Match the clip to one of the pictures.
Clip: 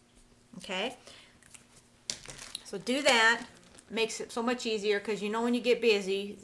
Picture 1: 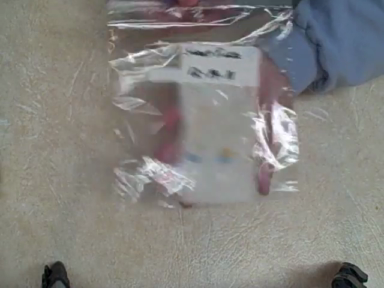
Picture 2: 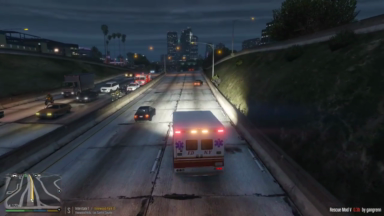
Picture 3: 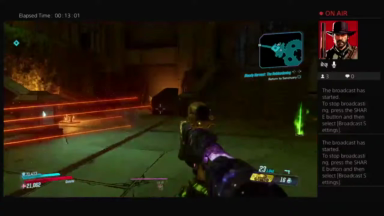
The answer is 1